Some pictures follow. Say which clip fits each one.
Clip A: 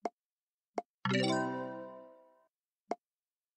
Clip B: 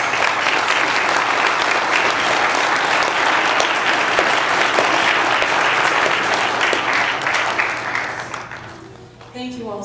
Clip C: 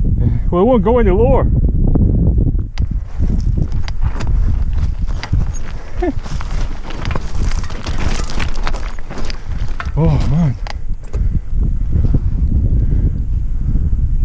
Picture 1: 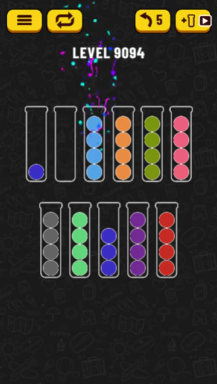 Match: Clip A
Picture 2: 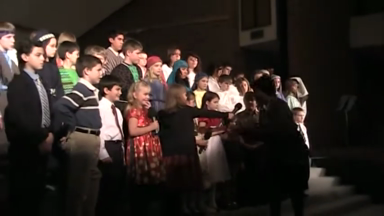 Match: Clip B